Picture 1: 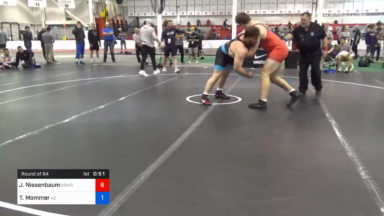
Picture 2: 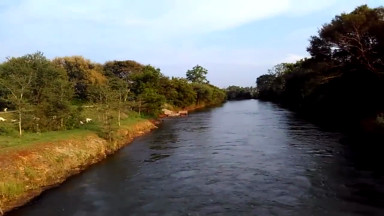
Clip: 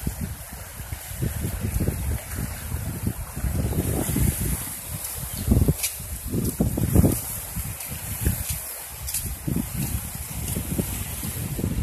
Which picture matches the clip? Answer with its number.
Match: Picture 2